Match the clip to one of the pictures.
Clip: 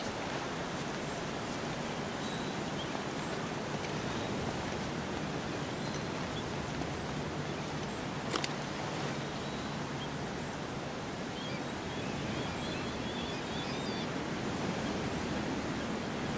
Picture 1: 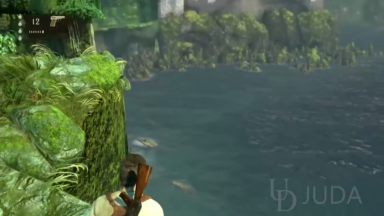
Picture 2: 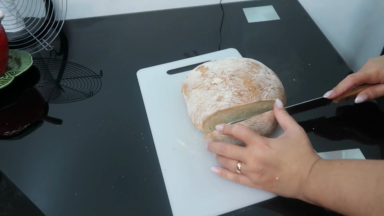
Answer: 1